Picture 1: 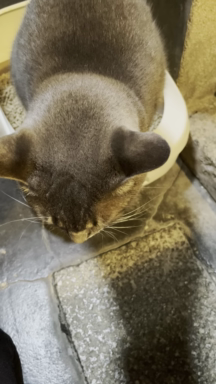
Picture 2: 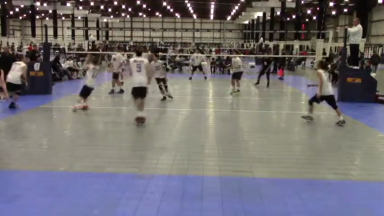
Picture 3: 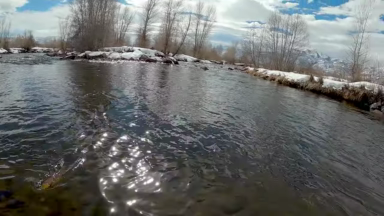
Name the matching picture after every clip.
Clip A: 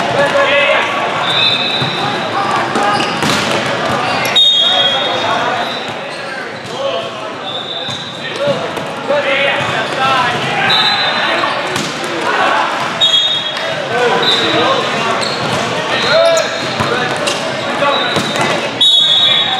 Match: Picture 2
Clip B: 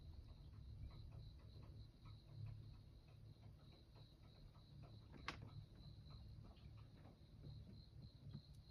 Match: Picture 1